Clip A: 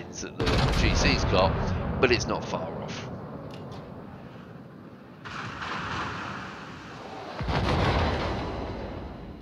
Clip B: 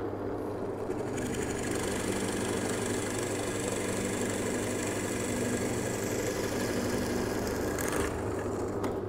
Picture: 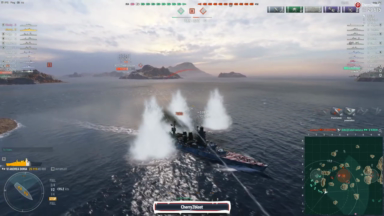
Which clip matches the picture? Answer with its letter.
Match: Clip A